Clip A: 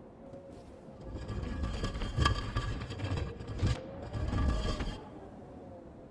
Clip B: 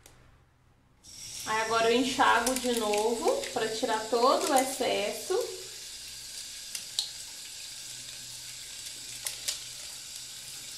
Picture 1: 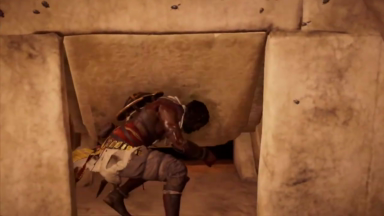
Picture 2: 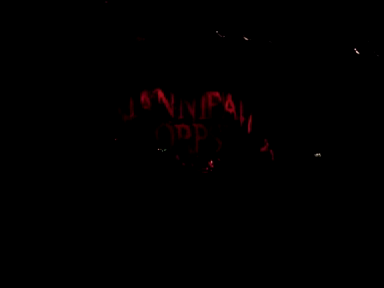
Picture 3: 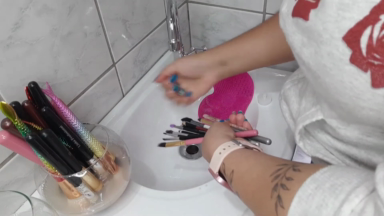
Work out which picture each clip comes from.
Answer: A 1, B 3